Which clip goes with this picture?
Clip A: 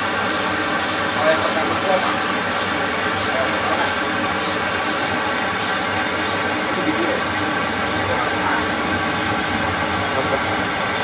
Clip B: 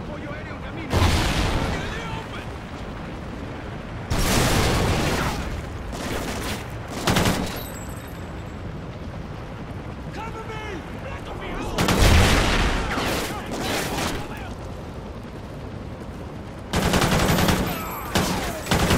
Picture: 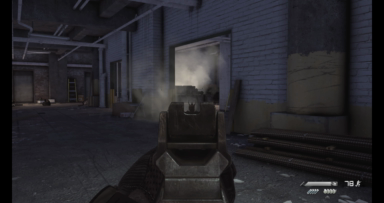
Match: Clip B